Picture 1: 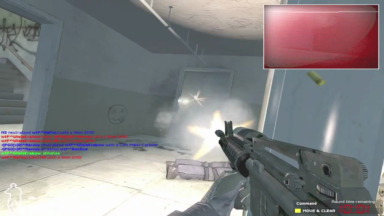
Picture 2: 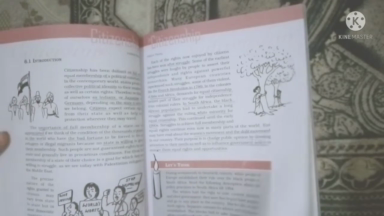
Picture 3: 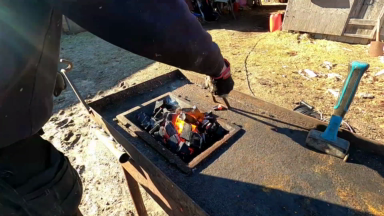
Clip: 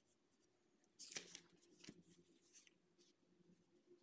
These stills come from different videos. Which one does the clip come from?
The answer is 2